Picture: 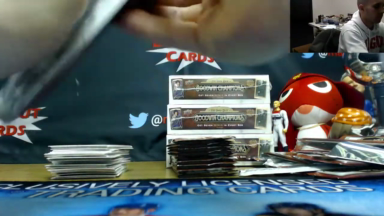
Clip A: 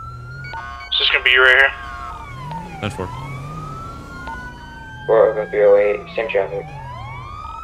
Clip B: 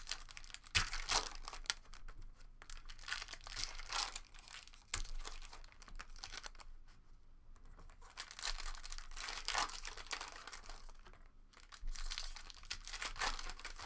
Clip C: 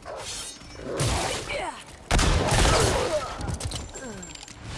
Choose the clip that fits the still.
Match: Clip B